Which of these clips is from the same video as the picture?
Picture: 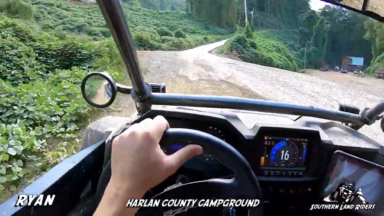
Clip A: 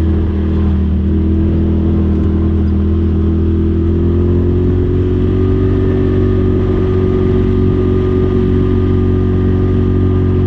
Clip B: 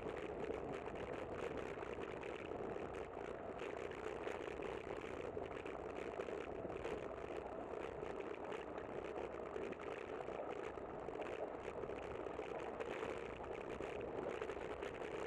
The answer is A